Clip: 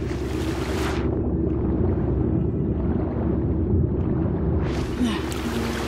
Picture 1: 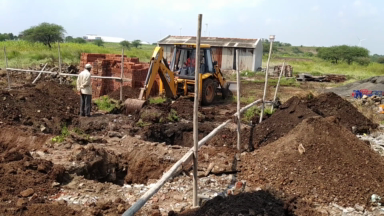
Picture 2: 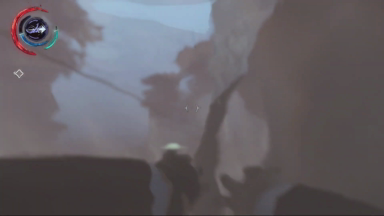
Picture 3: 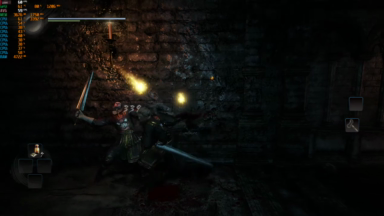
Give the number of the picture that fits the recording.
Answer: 2